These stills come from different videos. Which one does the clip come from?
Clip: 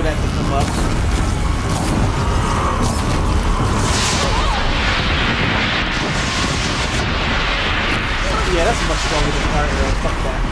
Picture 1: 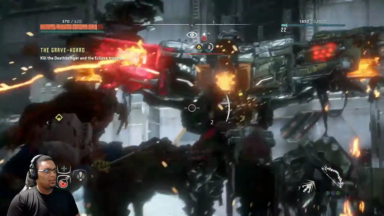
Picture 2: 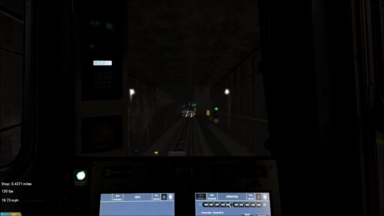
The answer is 1